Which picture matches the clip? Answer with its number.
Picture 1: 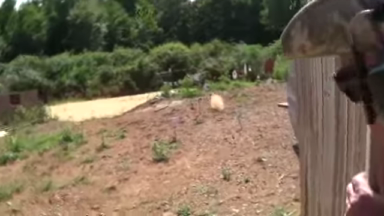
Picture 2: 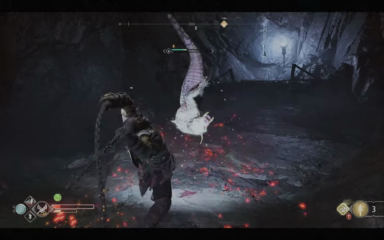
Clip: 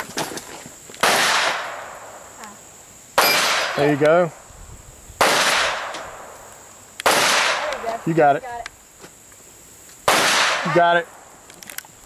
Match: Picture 1